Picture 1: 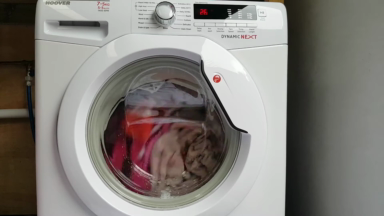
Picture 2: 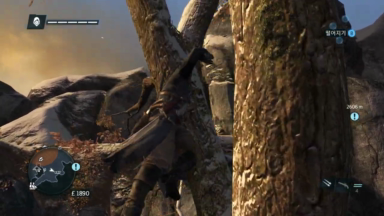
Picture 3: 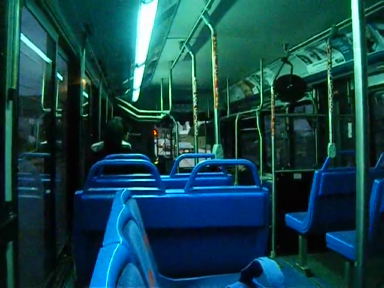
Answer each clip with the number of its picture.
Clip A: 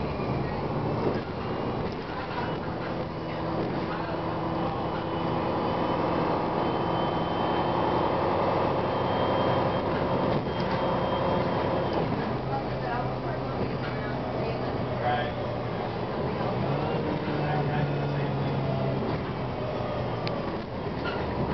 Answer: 3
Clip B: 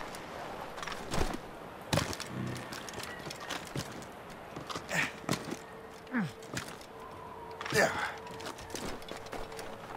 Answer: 2